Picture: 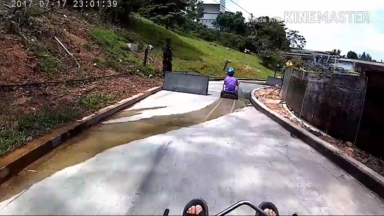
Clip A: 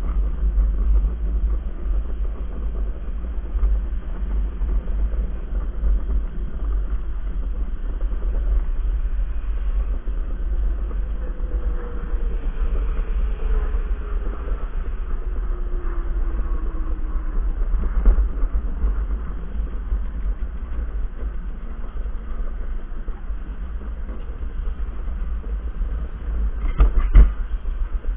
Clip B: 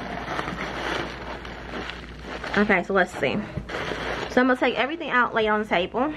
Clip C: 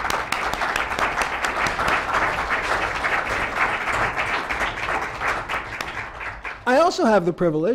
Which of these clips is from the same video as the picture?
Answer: A